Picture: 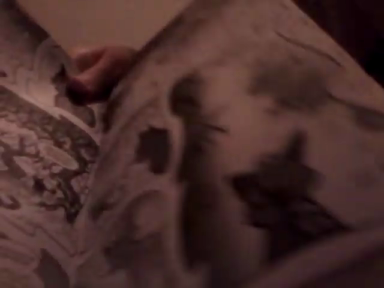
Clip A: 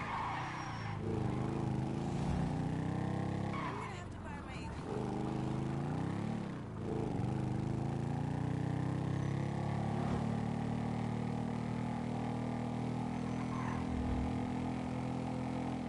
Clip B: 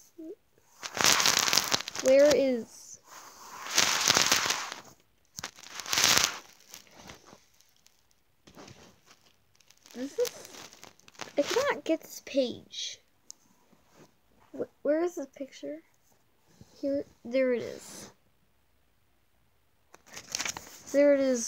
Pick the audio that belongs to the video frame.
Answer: B